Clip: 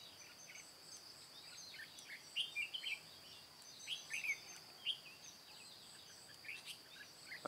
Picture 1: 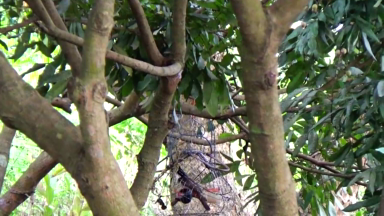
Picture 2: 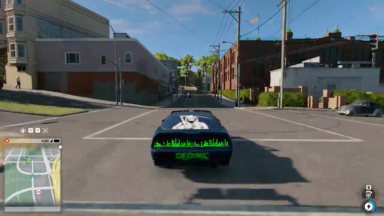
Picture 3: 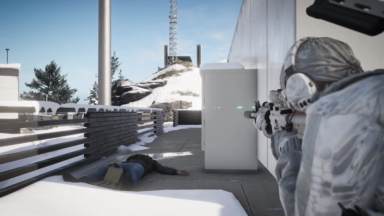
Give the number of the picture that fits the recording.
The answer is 1